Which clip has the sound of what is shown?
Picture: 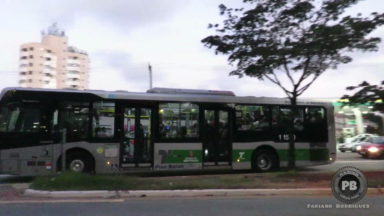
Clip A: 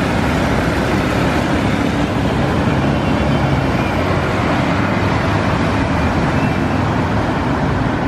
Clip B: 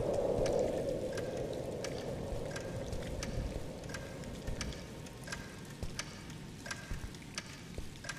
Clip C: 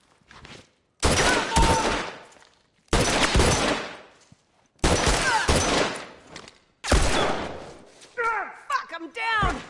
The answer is A